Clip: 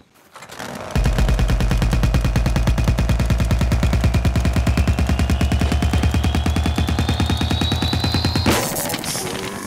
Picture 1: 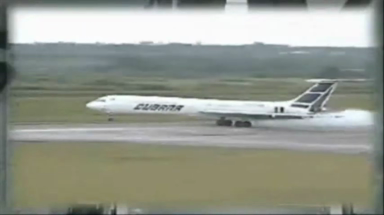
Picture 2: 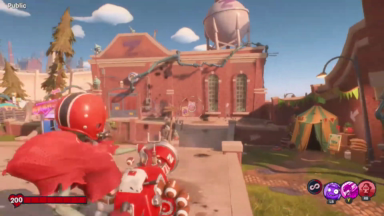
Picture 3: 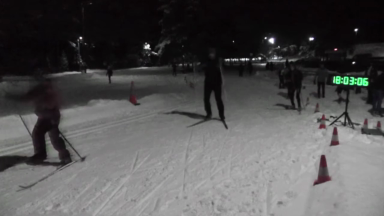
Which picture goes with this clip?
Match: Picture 2